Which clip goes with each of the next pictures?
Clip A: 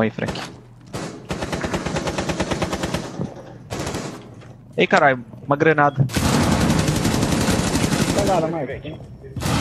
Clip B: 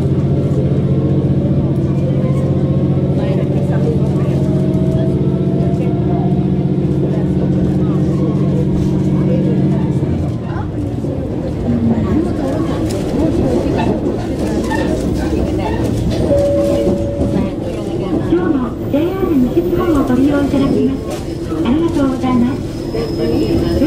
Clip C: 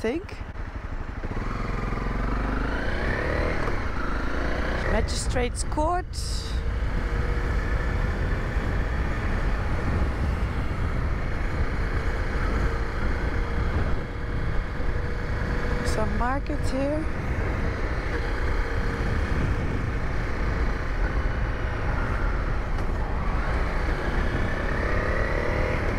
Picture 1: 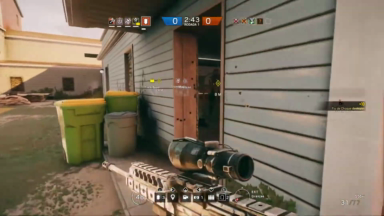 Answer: A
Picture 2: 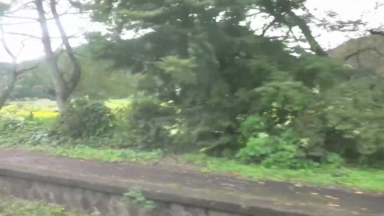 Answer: B